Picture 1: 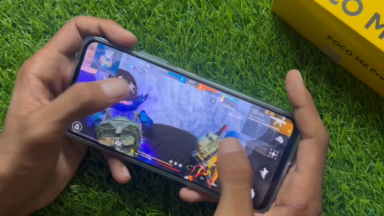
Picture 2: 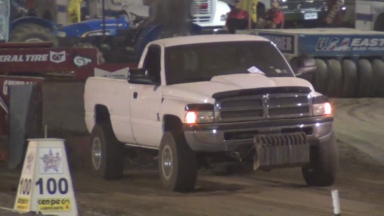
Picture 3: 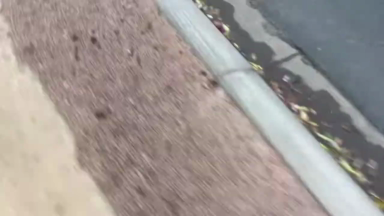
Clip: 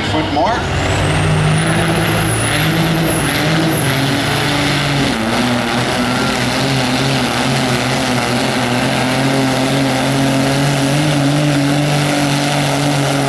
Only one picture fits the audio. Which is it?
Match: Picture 2